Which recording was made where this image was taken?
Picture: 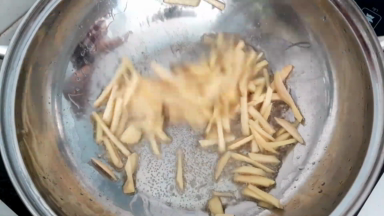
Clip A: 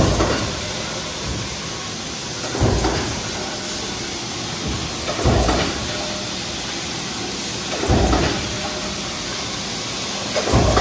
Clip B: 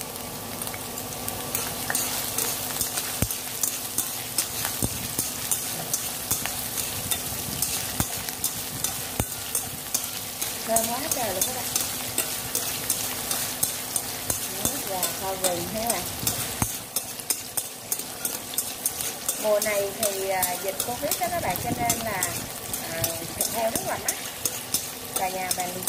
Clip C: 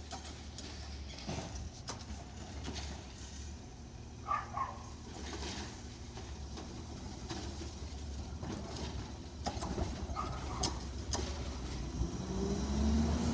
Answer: B